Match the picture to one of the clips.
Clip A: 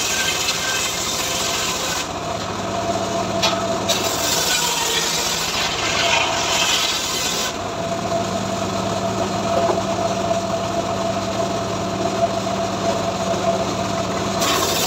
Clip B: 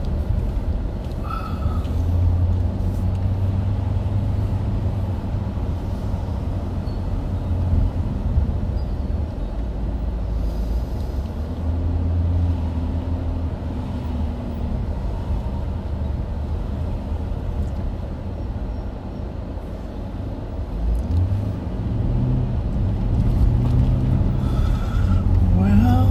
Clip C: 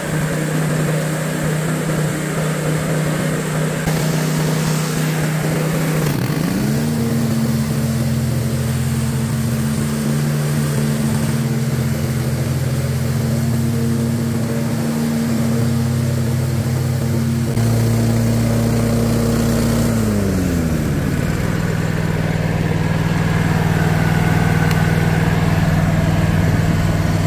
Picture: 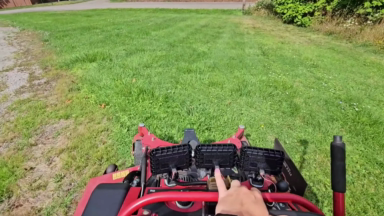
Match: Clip C